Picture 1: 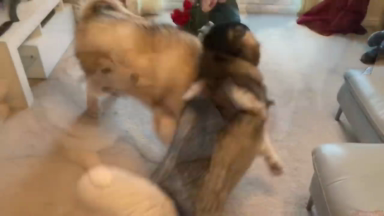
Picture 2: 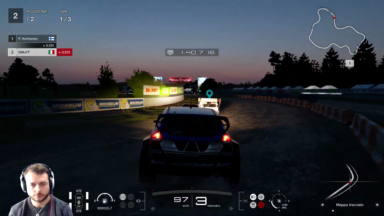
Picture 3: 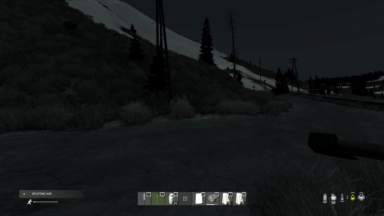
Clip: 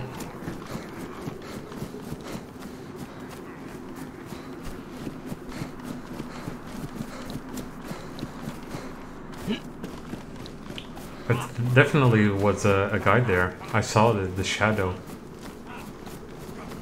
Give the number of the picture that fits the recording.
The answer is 3